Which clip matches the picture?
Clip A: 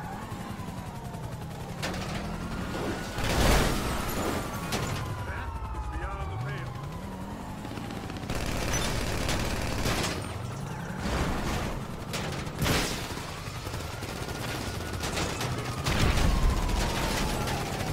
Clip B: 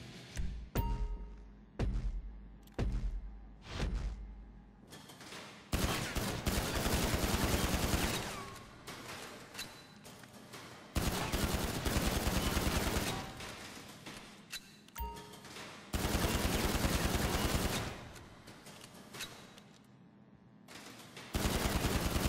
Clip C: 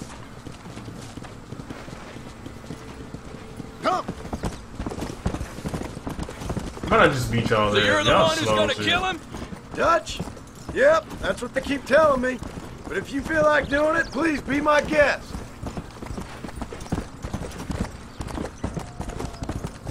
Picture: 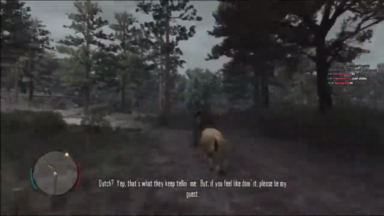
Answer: C